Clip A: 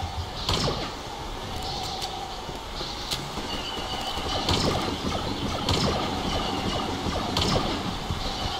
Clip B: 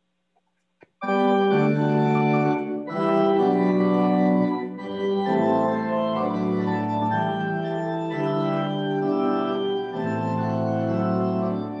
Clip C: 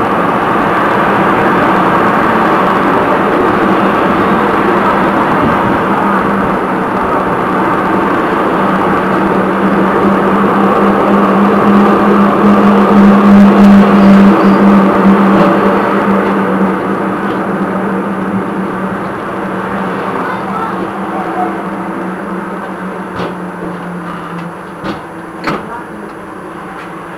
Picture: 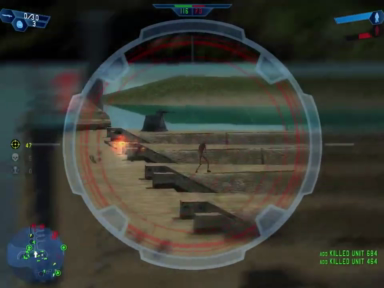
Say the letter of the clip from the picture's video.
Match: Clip A